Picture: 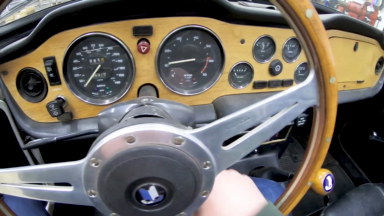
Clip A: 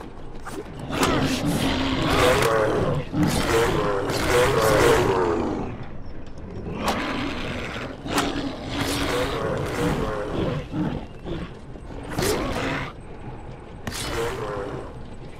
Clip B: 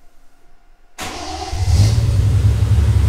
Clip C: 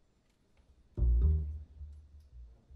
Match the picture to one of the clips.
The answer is B